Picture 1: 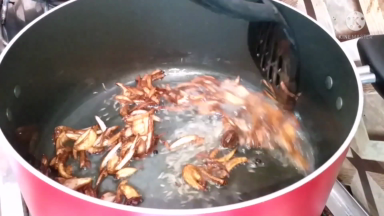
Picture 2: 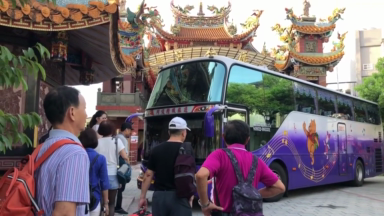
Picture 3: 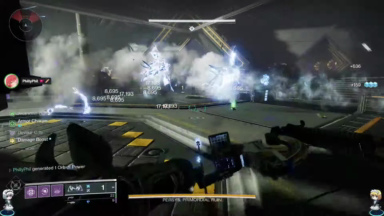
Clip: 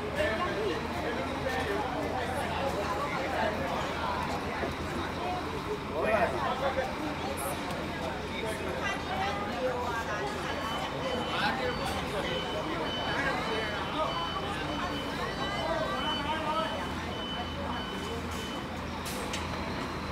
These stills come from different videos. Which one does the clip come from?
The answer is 2